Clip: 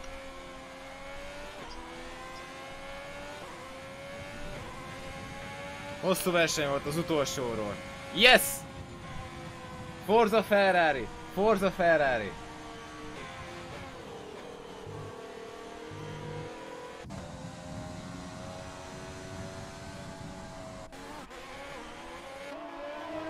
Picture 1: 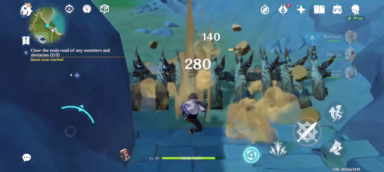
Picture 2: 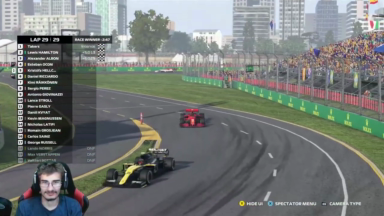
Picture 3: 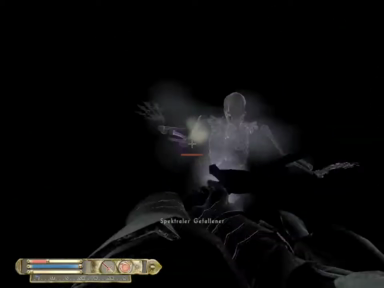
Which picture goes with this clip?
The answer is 2